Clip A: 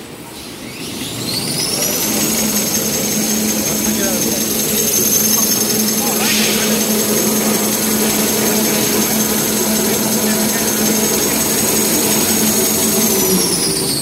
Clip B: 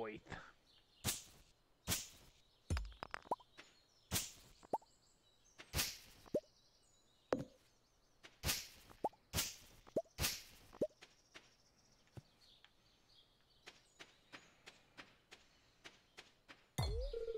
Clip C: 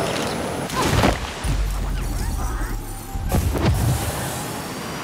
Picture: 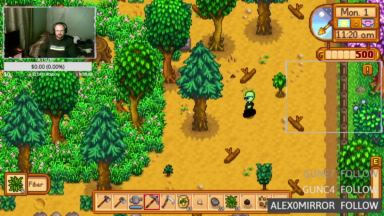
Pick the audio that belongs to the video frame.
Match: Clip B